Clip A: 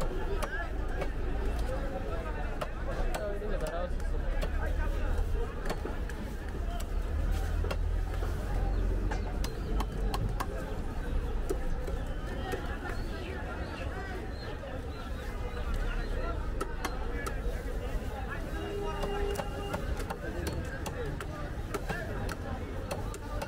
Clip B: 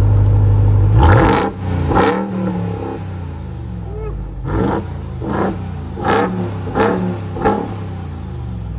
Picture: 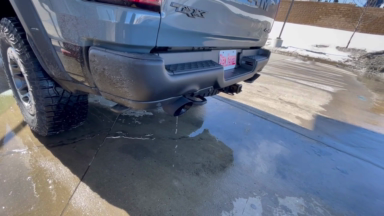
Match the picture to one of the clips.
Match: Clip B